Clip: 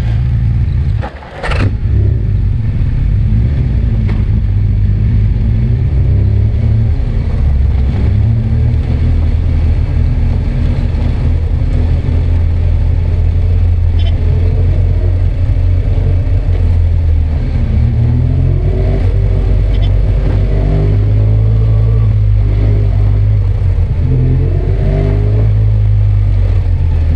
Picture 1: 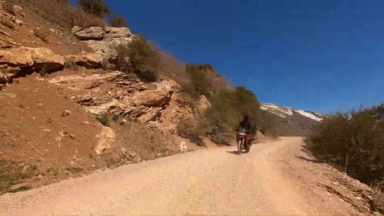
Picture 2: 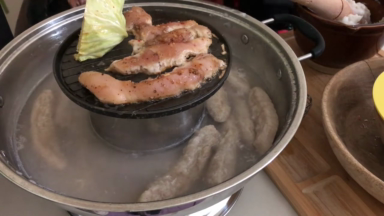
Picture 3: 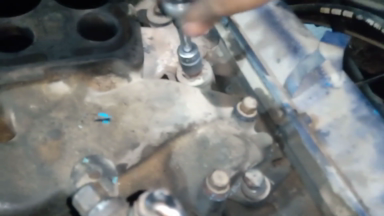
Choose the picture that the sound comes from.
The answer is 1